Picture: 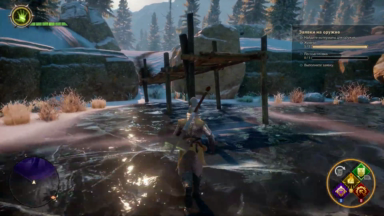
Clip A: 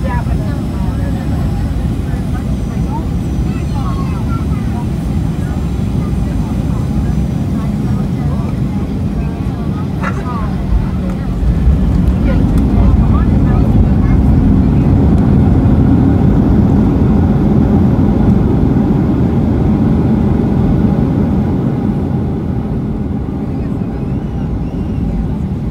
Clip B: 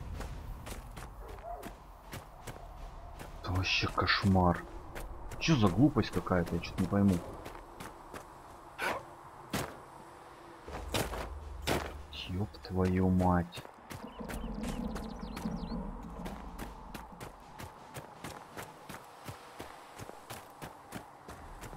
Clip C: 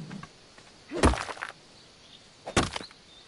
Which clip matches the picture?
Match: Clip B